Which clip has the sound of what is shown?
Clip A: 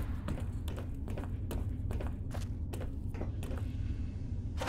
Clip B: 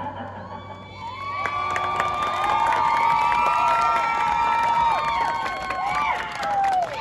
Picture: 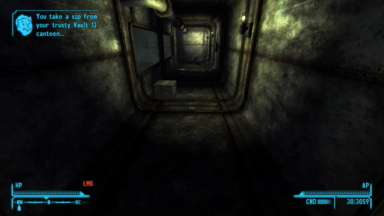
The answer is A